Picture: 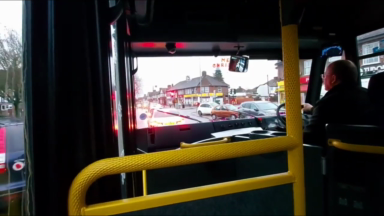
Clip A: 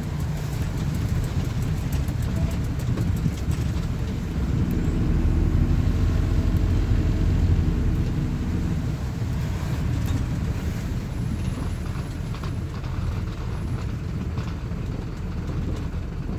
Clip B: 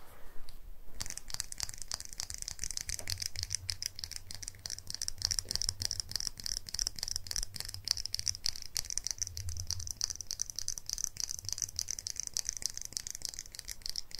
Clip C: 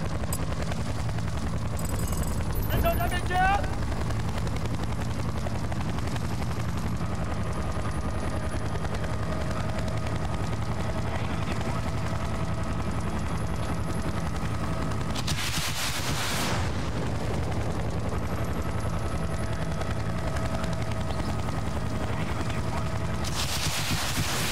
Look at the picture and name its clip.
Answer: A